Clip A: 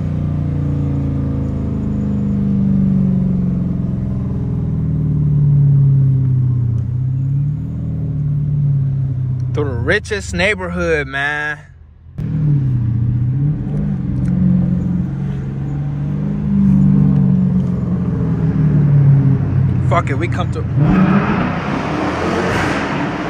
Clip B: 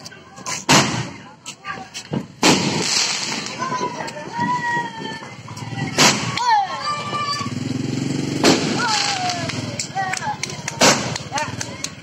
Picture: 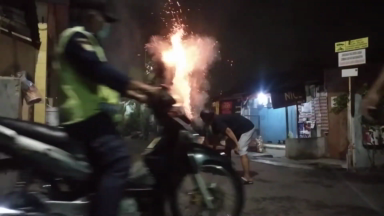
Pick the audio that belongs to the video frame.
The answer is B